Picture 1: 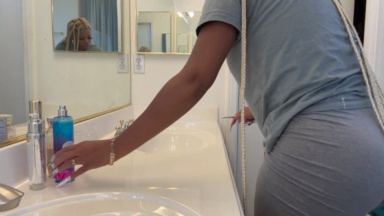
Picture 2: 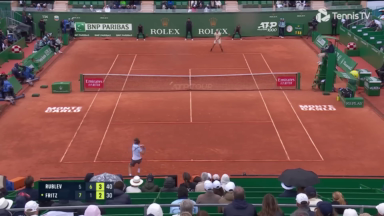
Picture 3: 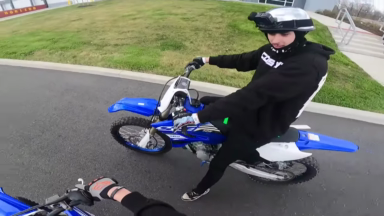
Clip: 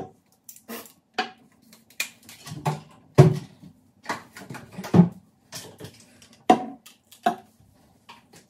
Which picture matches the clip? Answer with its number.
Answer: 1